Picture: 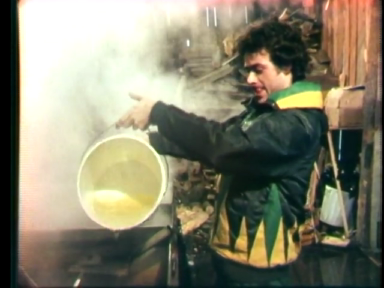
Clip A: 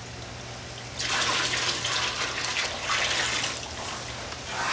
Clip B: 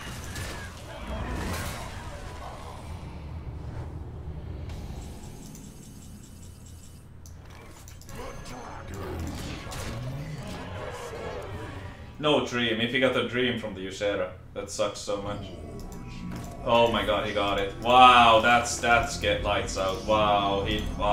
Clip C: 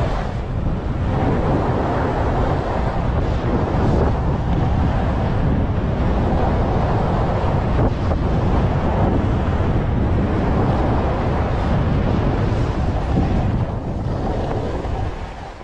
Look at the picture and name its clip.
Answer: A